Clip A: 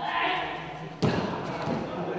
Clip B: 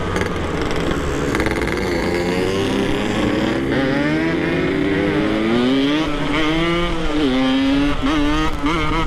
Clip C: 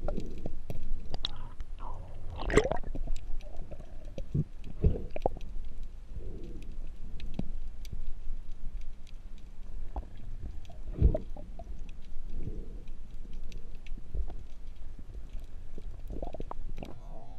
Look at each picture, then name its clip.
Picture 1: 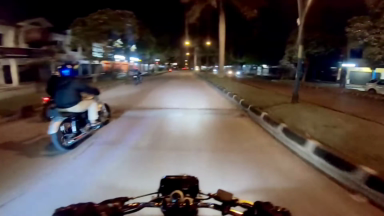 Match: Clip B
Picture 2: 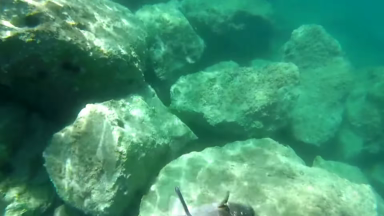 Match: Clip C